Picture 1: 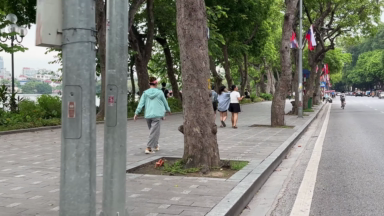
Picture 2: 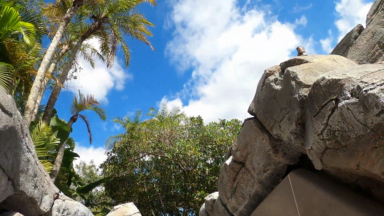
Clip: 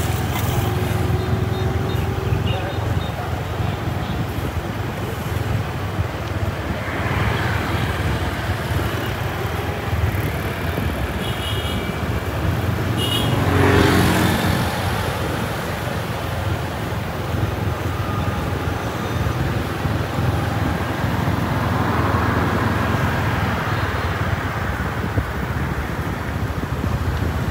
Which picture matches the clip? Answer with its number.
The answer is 1